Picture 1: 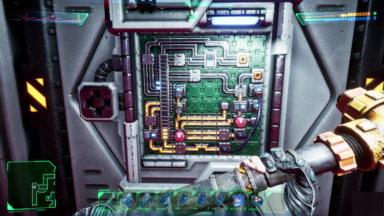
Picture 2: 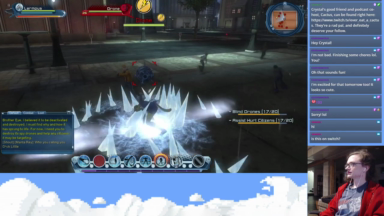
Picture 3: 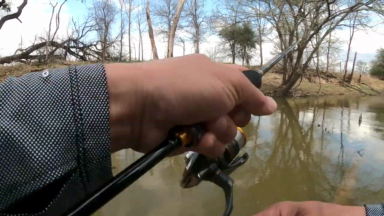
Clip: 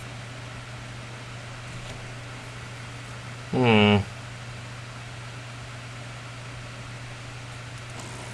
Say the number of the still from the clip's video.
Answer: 1